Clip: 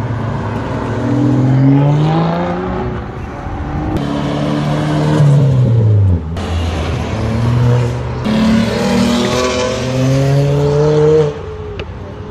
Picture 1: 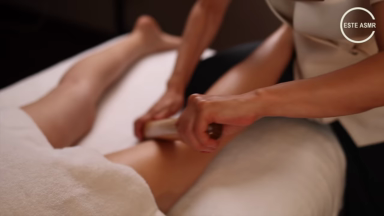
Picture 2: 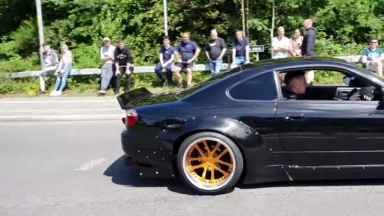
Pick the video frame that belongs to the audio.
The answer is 2